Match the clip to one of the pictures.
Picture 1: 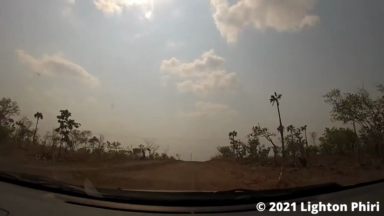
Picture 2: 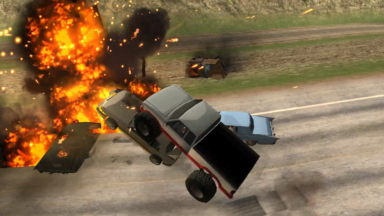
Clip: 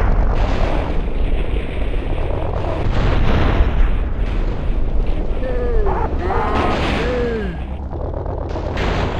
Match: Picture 2